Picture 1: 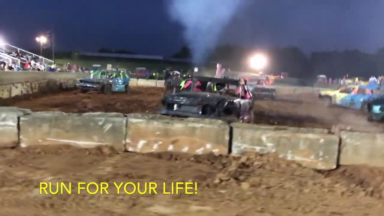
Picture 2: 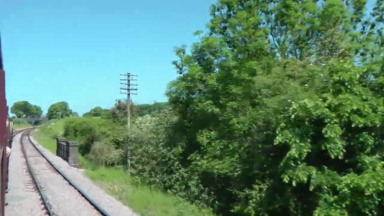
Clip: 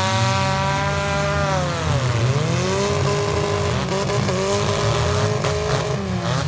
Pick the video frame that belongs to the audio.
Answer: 1